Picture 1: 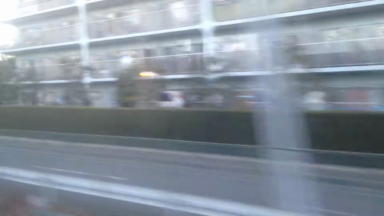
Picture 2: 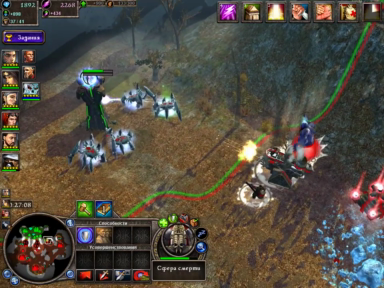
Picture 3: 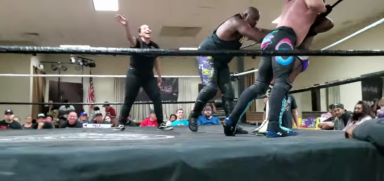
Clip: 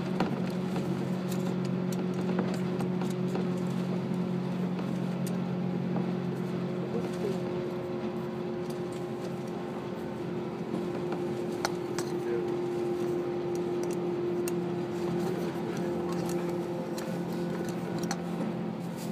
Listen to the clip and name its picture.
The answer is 1